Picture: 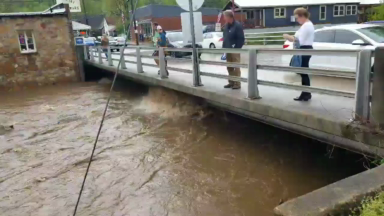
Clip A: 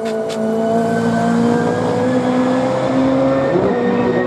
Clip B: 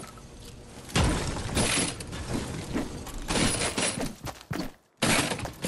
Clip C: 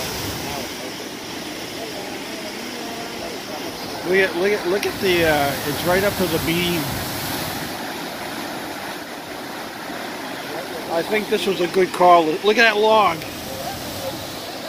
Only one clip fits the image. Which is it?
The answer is C